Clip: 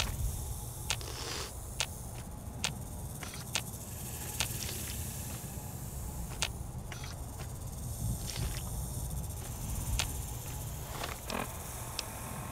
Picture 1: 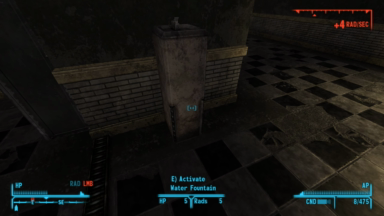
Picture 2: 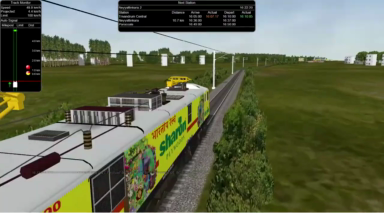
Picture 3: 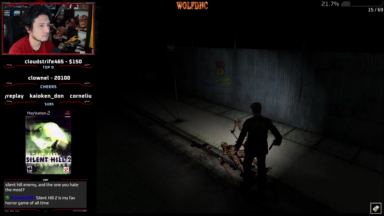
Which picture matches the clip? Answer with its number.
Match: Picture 1